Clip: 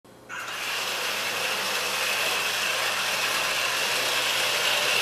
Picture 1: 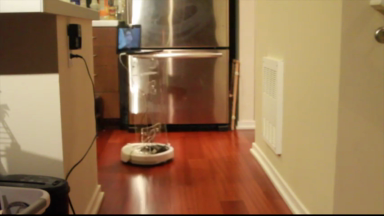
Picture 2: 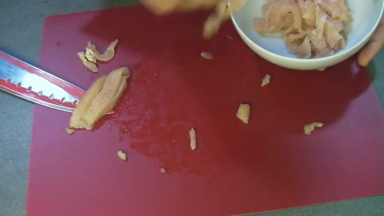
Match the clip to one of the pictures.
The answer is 1